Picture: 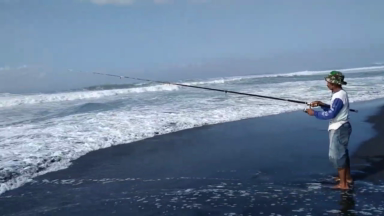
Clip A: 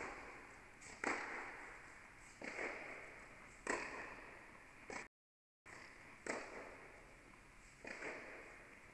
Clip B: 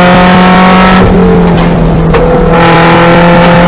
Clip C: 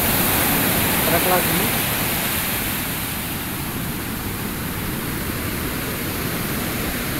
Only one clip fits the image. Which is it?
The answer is C